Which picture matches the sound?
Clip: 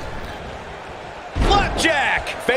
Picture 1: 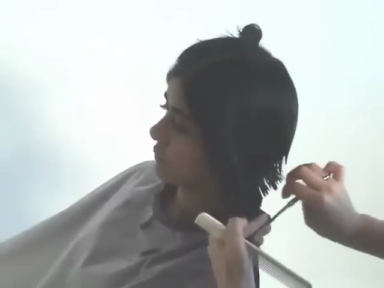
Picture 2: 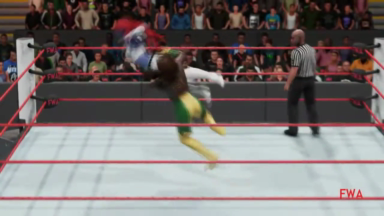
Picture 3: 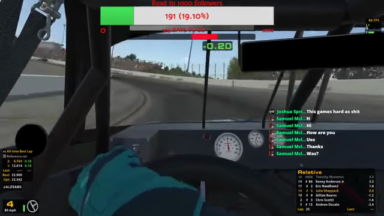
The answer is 2